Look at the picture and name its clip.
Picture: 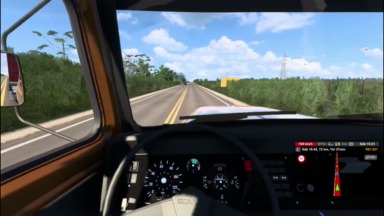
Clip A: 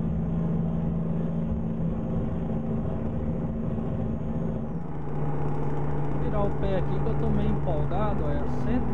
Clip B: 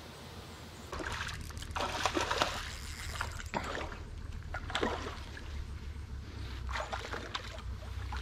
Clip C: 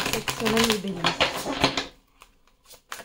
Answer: A